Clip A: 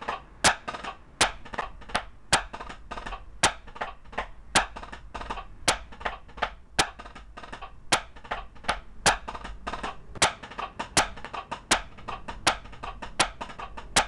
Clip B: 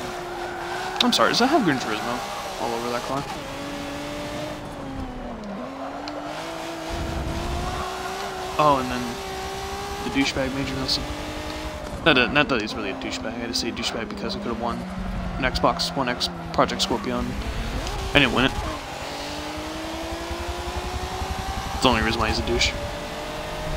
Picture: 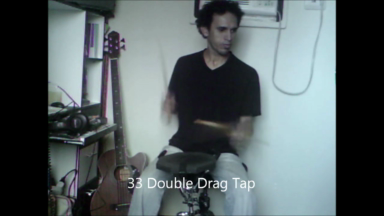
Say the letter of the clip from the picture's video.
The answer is A